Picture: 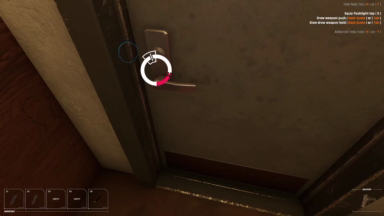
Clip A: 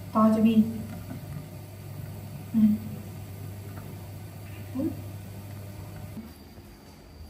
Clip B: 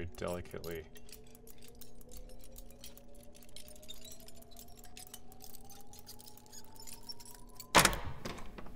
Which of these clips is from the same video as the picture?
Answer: B